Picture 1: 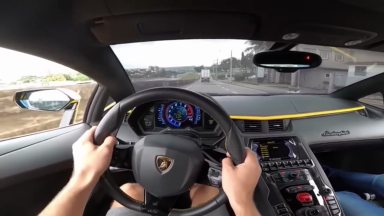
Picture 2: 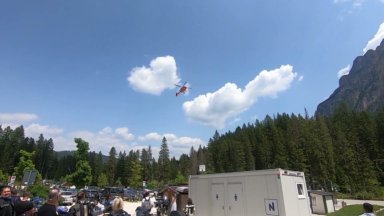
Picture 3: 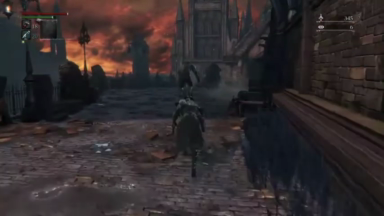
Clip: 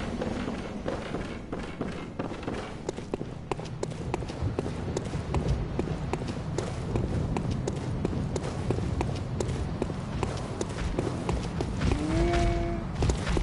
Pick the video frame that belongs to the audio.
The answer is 3